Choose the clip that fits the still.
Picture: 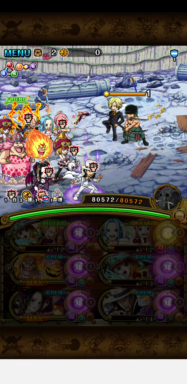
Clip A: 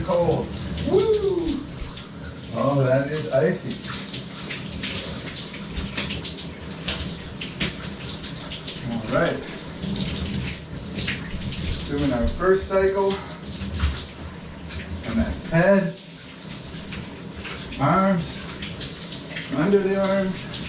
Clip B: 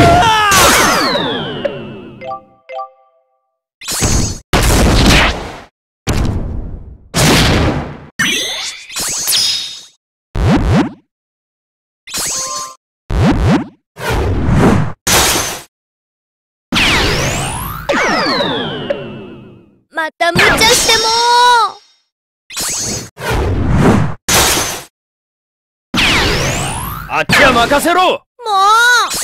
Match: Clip B